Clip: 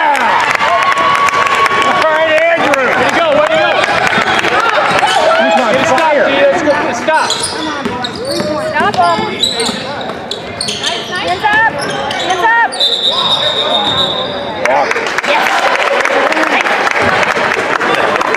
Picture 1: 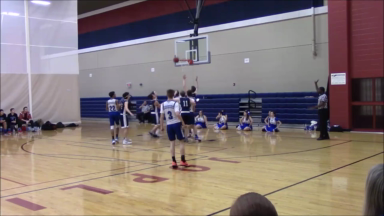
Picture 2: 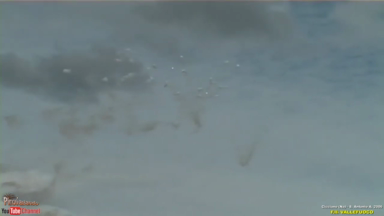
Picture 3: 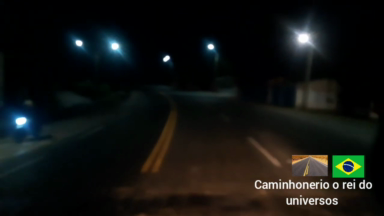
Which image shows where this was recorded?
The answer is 1